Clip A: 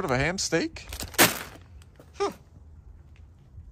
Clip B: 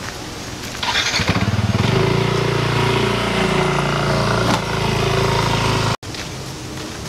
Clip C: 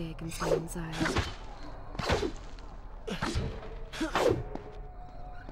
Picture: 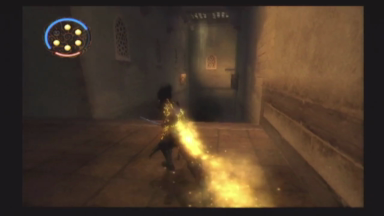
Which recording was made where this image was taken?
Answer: C